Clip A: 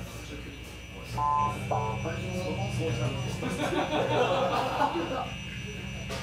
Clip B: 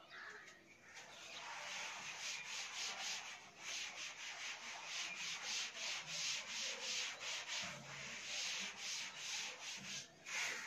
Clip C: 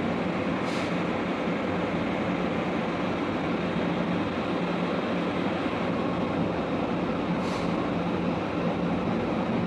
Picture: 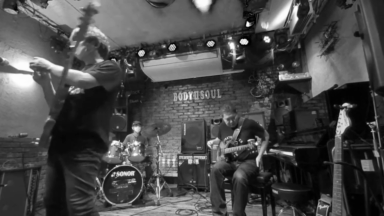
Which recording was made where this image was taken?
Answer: A